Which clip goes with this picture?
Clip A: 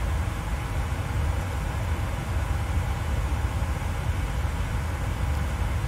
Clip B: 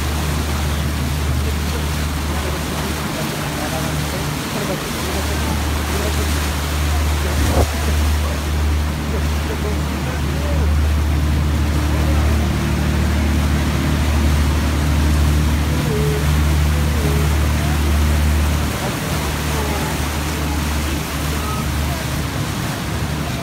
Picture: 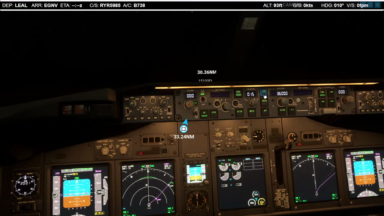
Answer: A